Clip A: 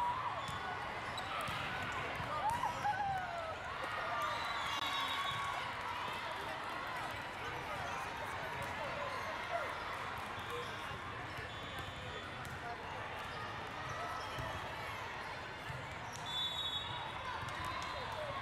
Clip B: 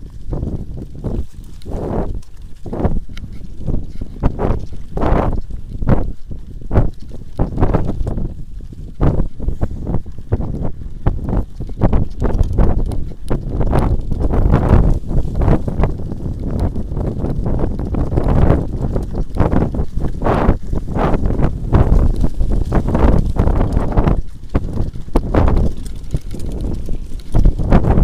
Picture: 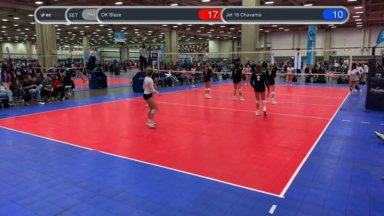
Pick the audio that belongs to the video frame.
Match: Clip A